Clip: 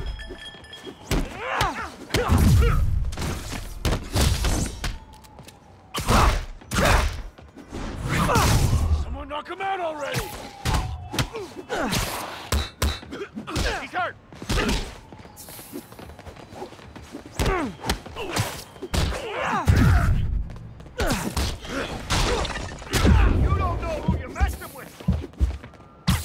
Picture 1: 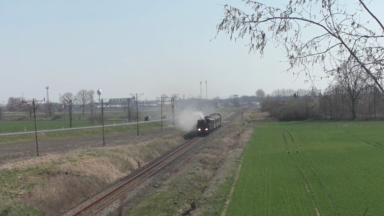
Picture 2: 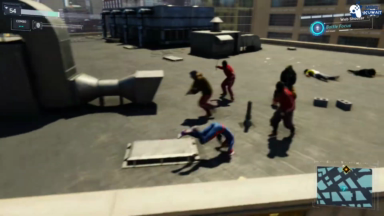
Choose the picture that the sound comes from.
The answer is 2